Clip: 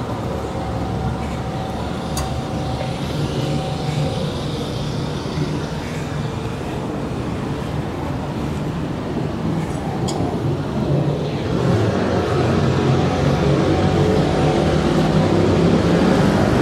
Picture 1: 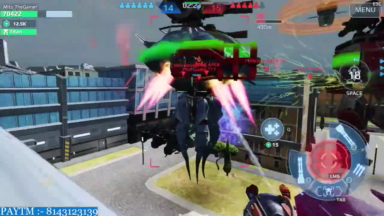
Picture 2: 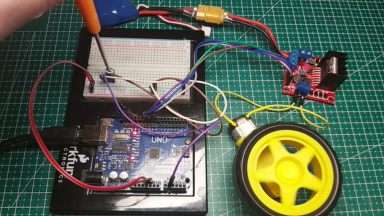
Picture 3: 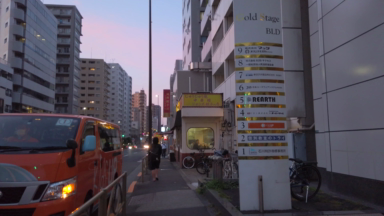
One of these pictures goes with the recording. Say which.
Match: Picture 3